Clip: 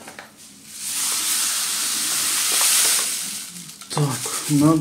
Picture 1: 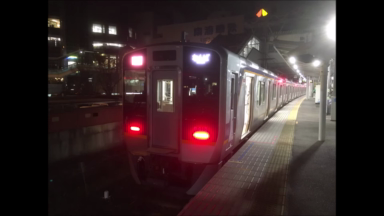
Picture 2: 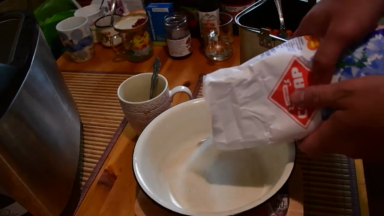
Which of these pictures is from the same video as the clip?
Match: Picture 2